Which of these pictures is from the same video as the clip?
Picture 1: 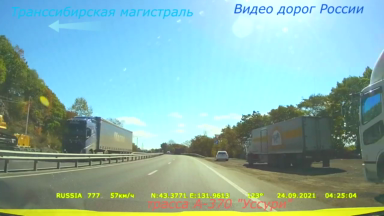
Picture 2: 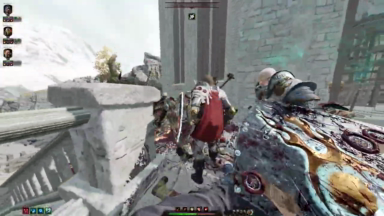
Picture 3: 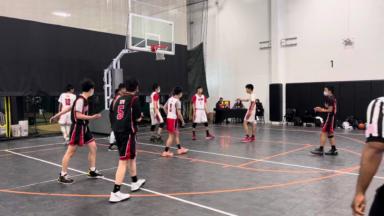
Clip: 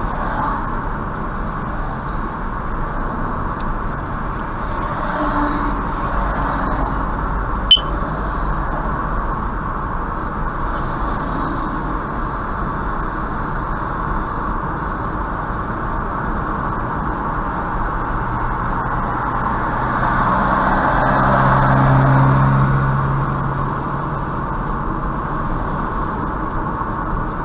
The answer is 1